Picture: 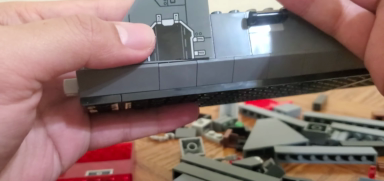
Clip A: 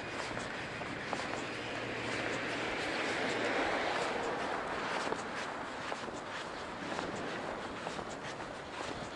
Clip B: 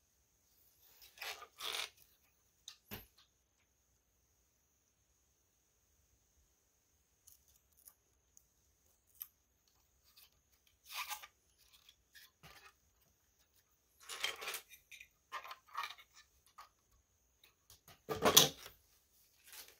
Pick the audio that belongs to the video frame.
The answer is B